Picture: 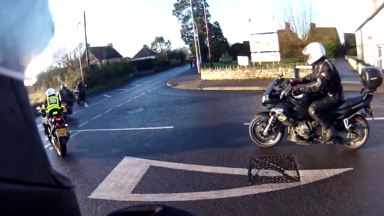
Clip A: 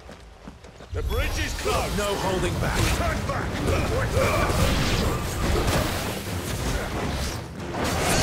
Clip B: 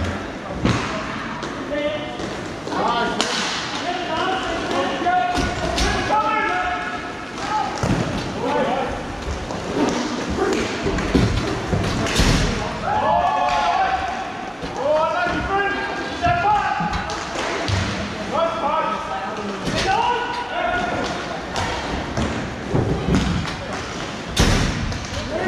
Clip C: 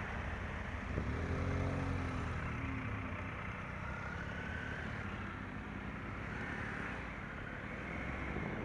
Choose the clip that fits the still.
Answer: C